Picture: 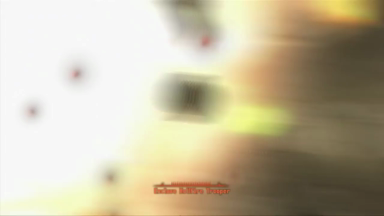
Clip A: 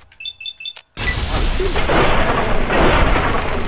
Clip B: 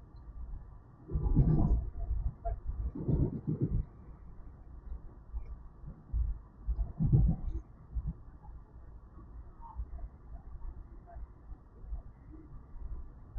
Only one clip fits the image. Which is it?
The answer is A